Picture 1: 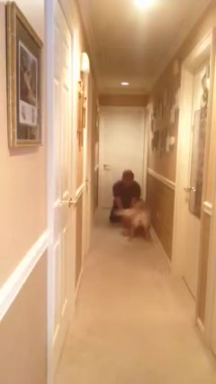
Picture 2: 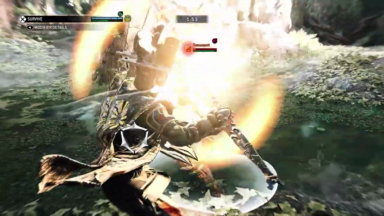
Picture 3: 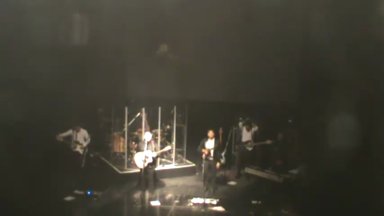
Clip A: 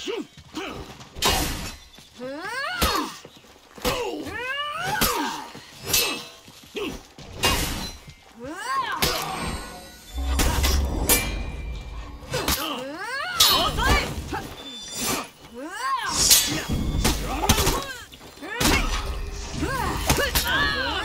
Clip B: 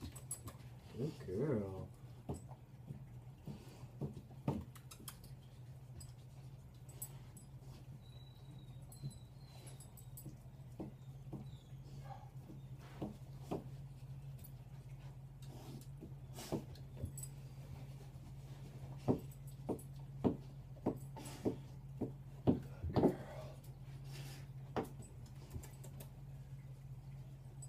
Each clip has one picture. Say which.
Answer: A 2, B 1